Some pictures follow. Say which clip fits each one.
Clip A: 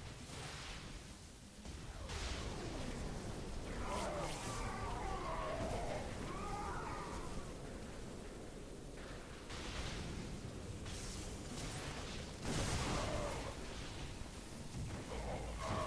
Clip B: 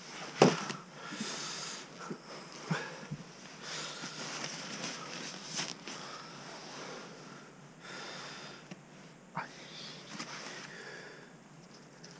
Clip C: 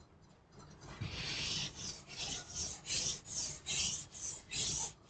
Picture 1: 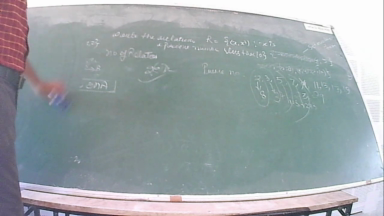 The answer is C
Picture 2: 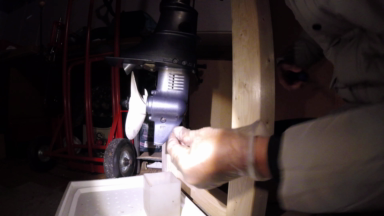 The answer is B